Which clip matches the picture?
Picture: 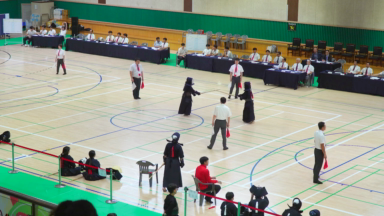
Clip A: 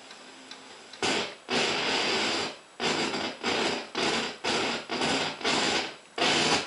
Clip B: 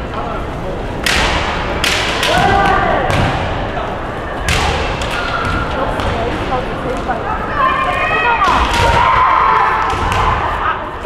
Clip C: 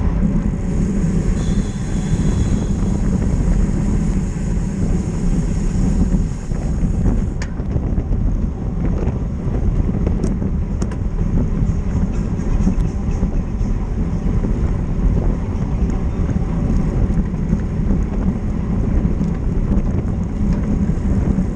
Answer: B